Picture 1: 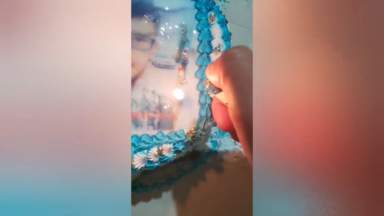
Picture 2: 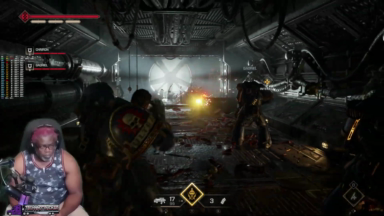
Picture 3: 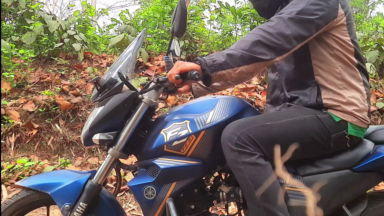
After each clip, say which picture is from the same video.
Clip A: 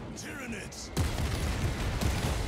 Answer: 2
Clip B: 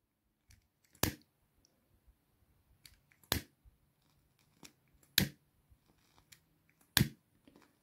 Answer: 1